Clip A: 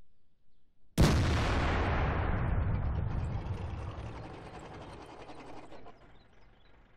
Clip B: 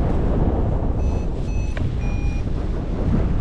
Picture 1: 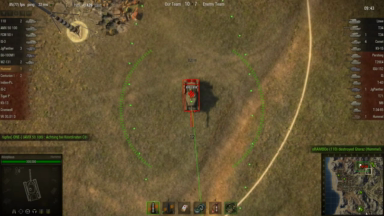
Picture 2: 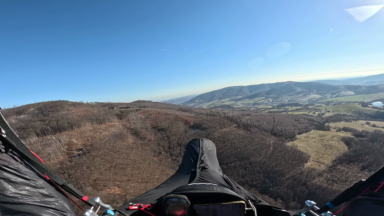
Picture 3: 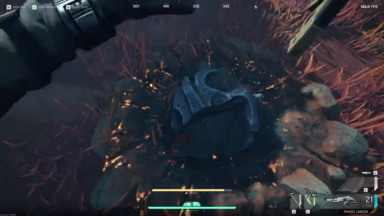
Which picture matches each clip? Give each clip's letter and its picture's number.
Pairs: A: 1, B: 2